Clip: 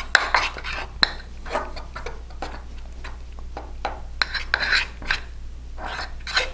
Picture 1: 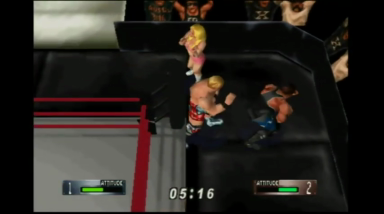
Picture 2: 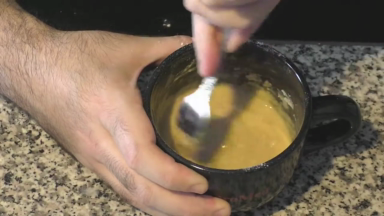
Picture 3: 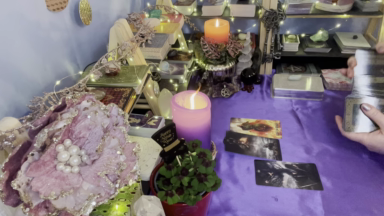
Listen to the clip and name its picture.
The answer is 2